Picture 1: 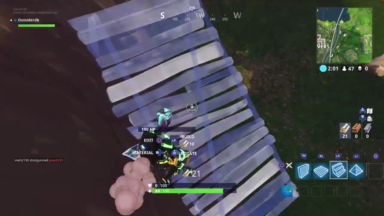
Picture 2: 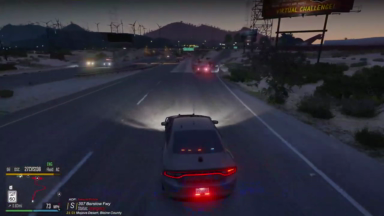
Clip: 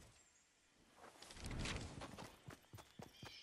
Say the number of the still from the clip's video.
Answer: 1